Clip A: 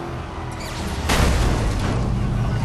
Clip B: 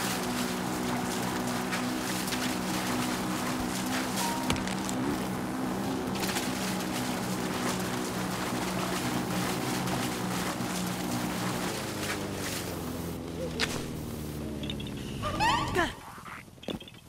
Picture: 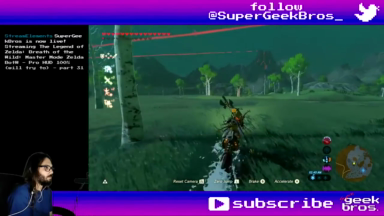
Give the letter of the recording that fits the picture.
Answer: B